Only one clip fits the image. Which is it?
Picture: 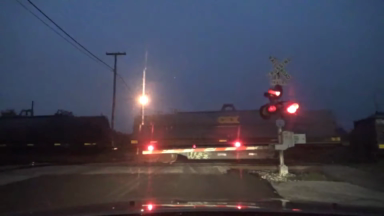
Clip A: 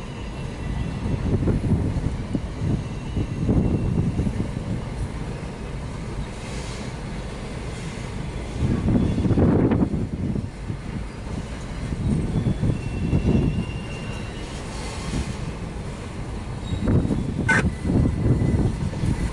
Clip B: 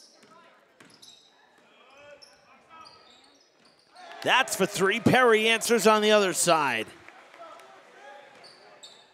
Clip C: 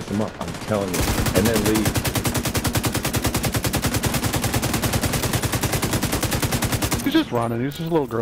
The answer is A